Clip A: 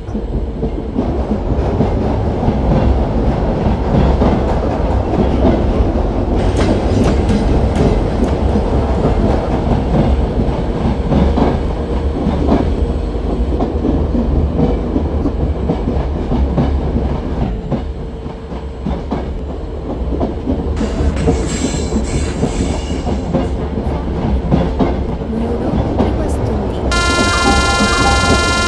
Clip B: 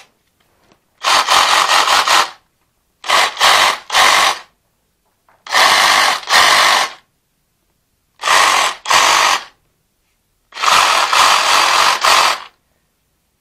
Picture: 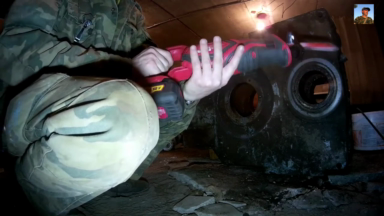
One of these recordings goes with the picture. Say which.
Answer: B